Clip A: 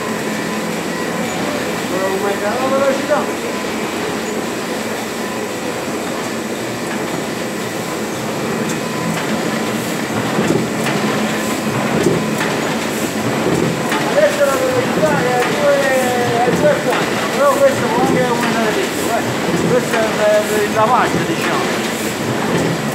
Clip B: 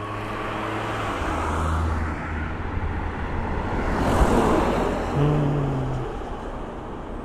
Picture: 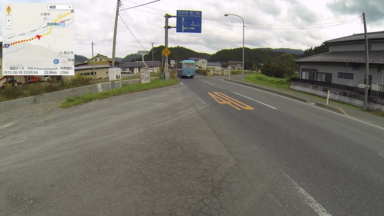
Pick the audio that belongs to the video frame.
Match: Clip B